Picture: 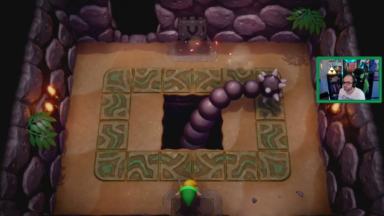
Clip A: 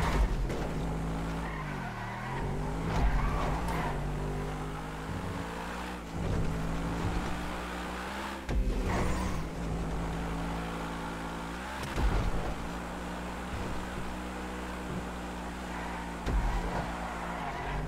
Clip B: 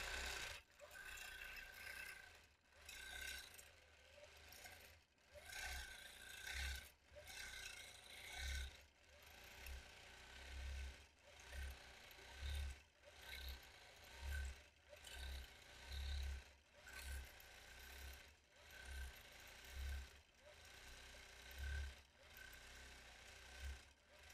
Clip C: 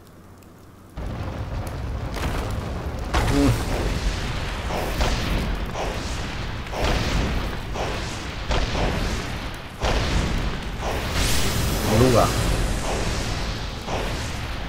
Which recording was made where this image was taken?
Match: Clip C